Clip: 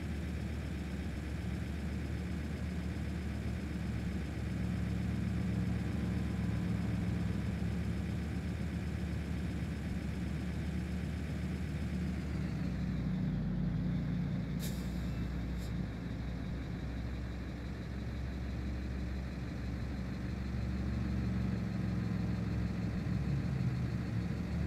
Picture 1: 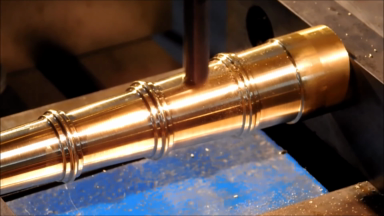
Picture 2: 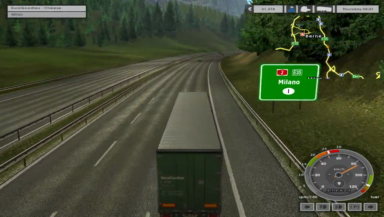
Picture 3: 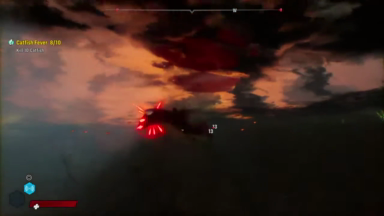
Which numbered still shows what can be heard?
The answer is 2